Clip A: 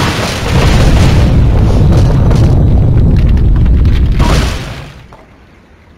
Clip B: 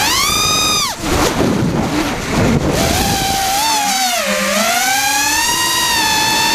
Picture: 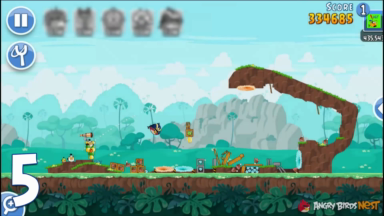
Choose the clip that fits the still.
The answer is A